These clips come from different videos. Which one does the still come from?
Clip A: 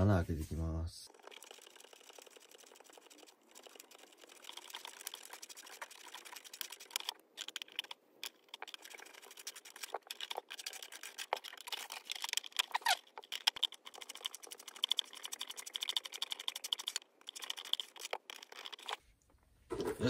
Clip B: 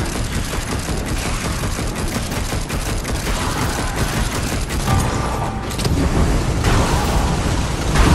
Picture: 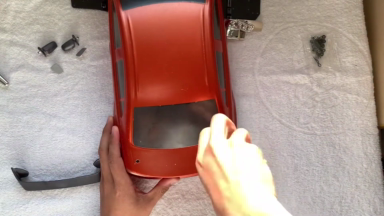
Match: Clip A